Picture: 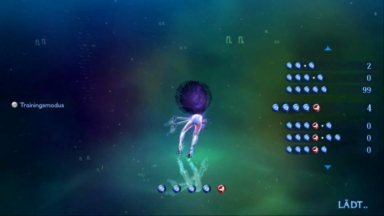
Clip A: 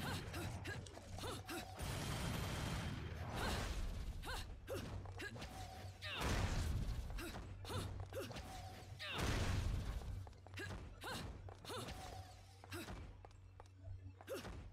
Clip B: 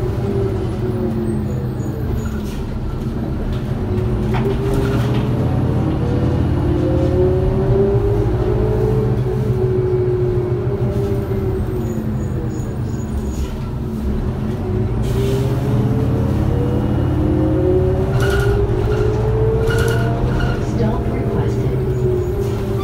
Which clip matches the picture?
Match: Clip A